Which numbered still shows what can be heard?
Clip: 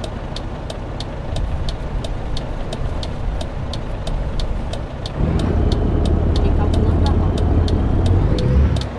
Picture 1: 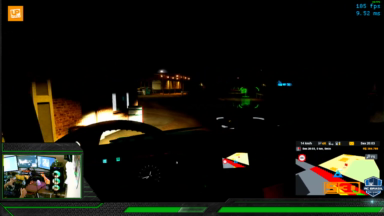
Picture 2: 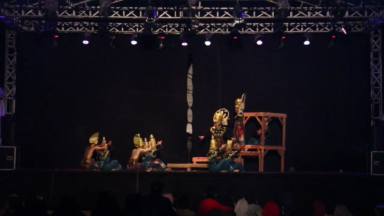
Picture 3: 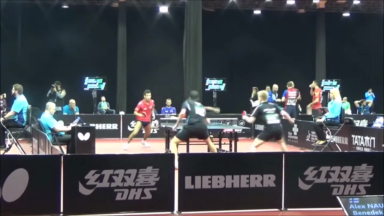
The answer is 1